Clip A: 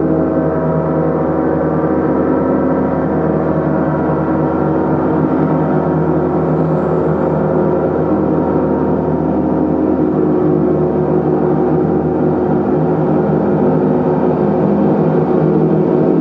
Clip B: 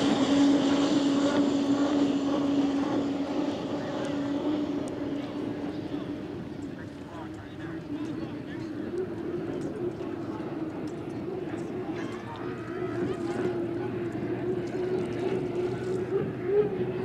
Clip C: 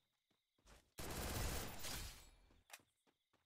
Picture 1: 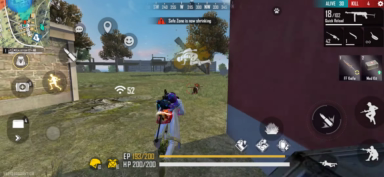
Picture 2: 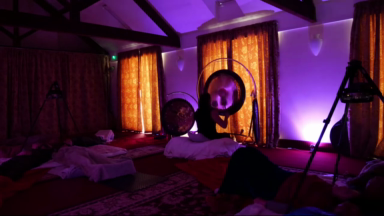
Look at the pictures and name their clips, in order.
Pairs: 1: C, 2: A